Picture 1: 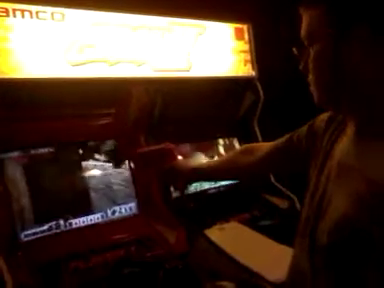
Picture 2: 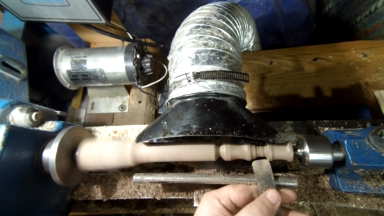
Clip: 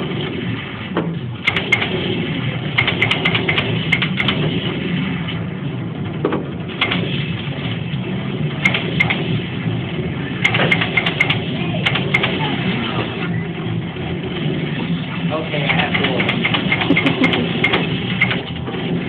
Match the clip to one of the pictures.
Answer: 1